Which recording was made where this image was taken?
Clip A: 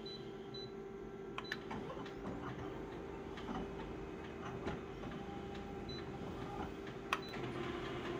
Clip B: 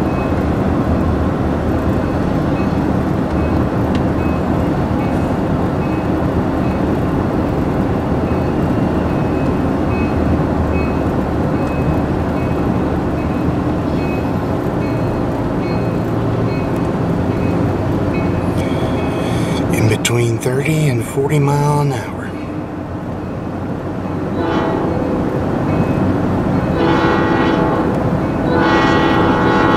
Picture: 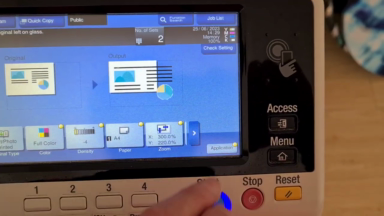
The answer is A